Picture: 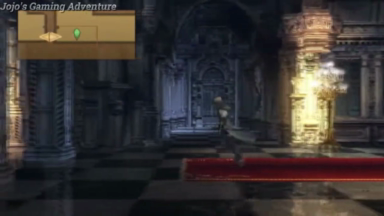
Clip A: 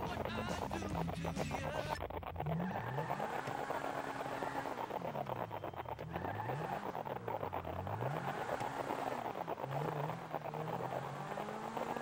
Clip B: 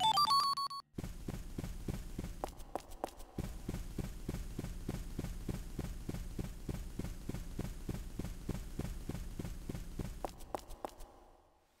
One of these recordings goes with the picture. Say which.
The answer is B